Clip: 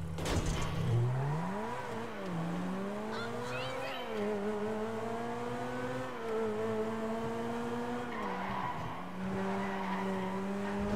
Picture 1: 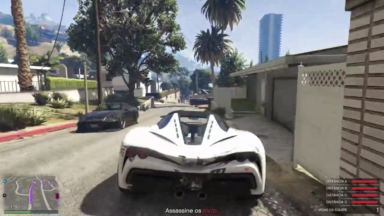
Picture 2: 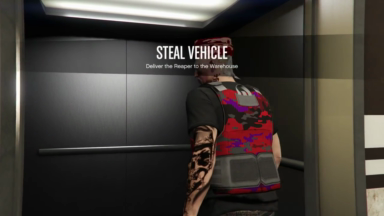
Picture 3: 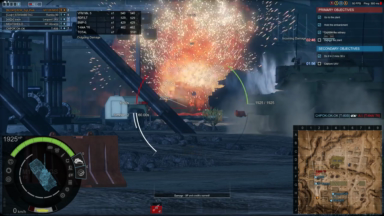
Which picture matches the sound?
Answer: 1